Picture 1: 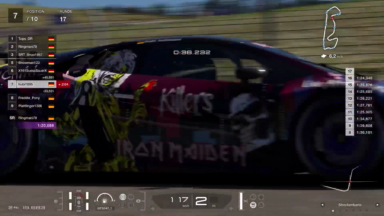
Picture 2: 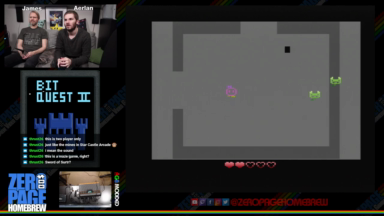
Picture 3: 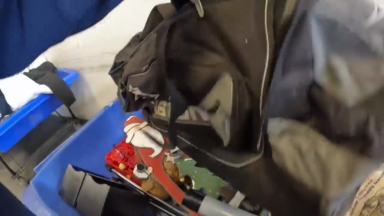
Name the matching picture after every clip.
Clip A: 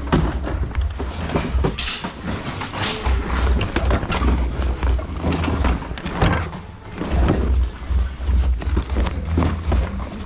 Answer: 3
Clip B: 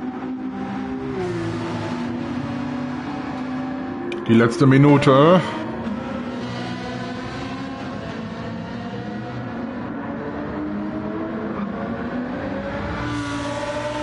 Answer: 1